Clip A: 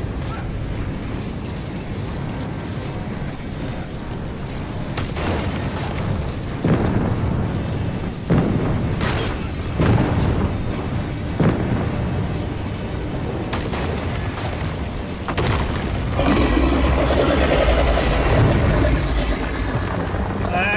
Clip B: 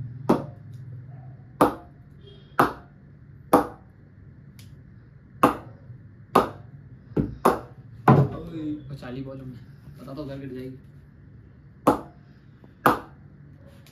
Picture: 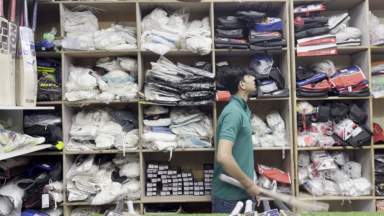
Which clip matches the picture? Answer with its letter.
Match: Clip B